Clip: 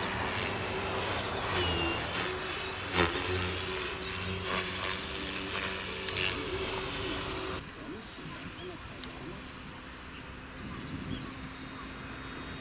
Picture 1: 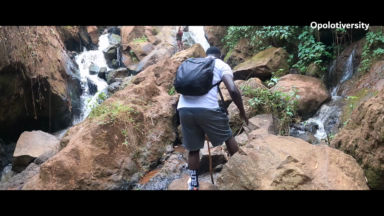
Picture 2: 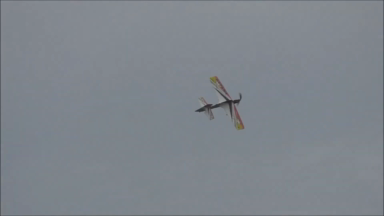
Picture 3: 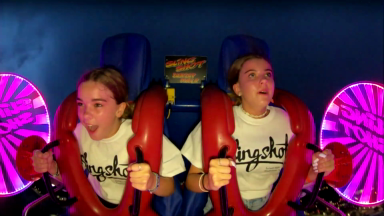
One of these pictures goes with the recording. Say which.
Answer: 2